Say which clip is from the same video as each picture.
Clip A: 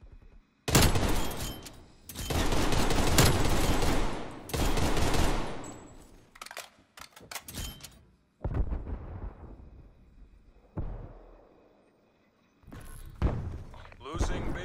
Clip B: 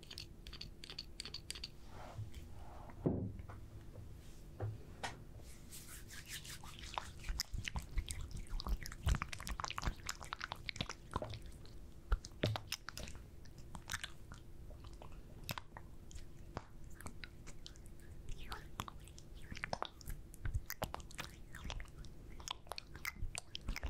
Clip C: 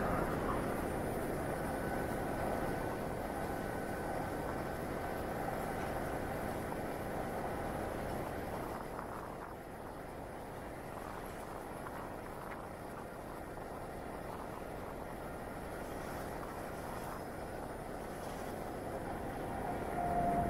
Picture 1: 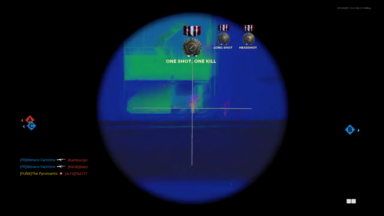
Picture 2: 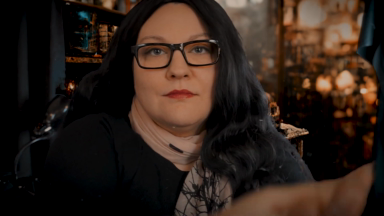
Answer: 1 A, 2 B